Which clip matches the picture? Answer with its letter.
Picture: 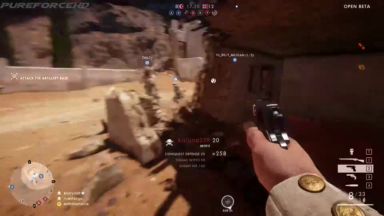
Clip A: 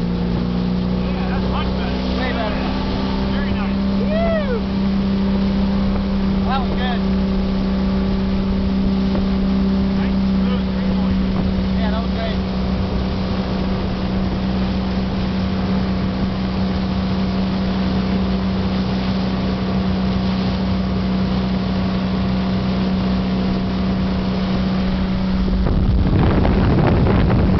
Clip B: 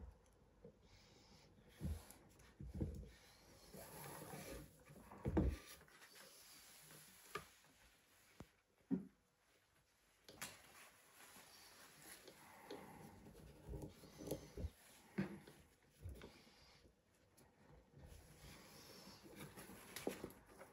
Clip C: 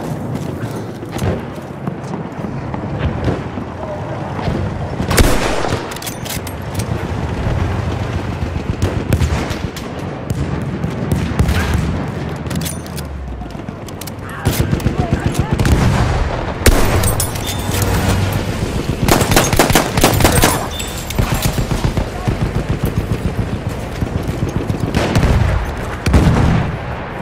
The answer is C